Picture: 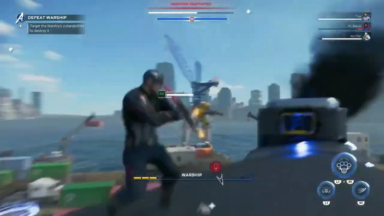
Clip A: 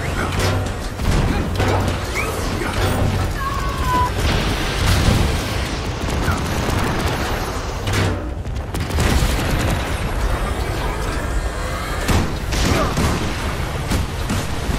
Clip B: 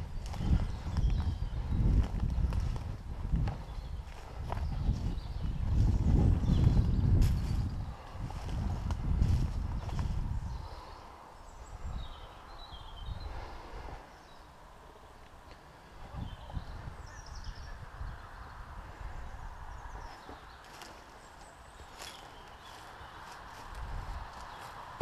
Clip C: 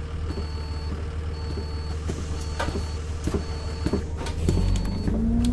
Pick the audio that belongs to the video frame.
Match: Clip A